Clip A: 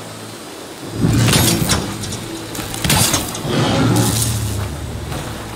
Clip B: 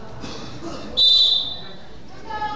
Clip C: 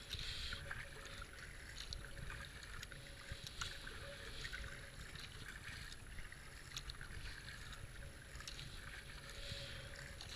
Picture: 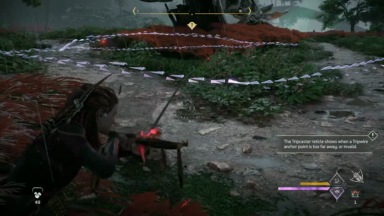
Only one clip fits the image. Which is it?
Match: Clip A